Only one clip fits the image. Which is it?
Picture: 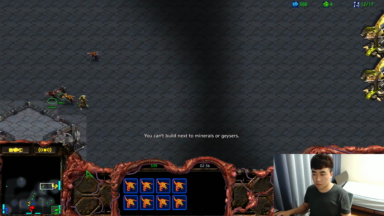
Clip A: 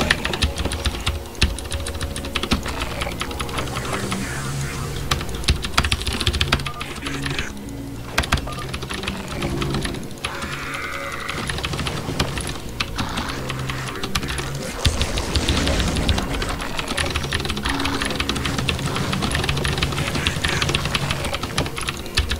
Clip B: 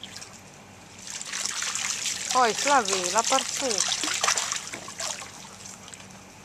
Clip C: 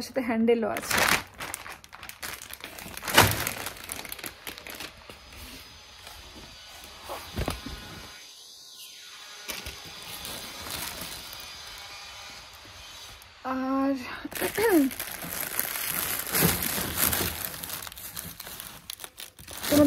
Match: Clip A